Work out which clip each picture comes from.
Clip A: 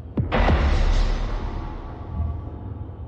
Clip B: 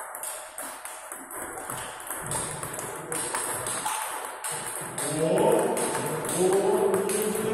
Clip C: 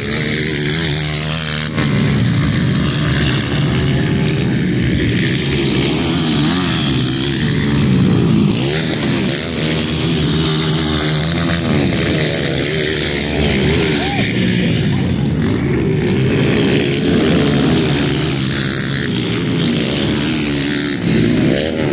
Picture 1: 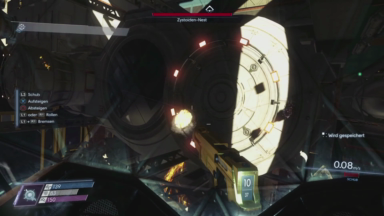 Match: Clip A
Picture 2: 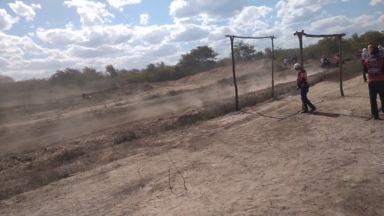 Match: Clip C